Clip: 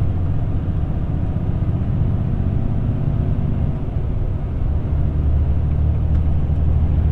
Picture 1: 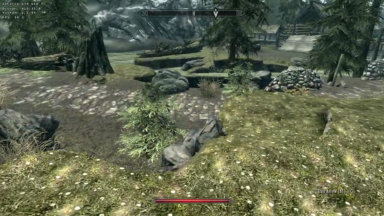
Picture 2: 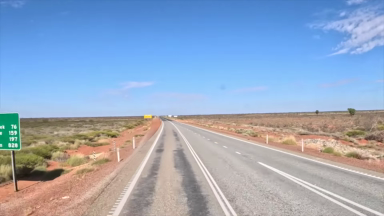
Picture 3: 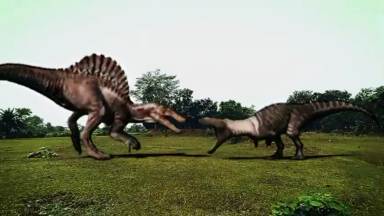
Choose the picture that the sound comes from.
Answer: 2